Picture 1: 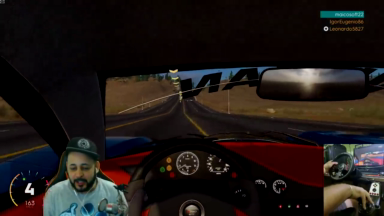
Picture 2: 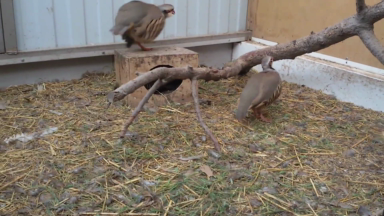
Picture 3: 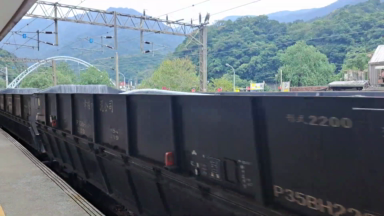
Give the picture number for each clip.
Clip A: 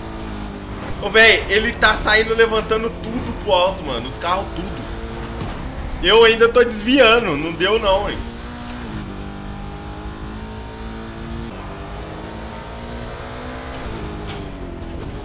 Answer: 1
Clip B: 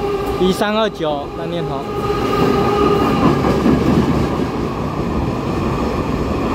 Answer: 3